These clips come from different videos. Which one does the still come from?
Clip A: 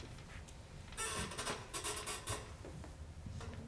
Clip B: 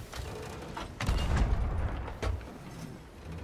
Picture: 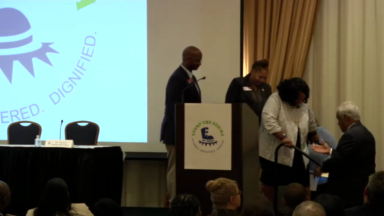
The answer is A